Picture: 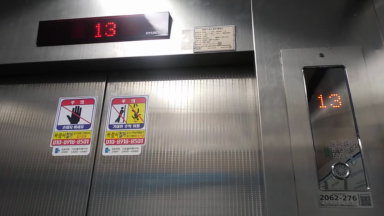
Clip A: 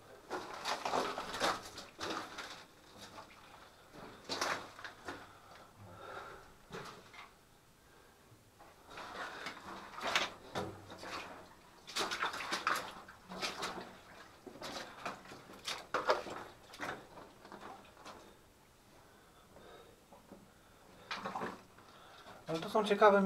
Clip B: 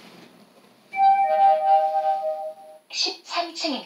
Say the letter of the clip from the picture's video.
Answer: B